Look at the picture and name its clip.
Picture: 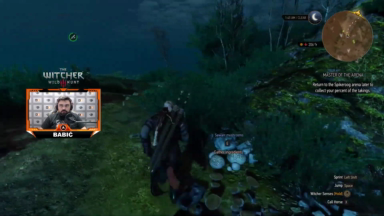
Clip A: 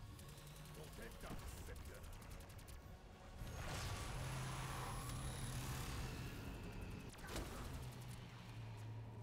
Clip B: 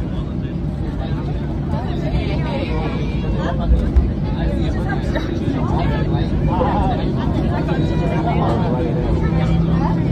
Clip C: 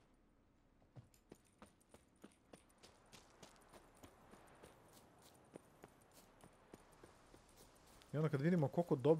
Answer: C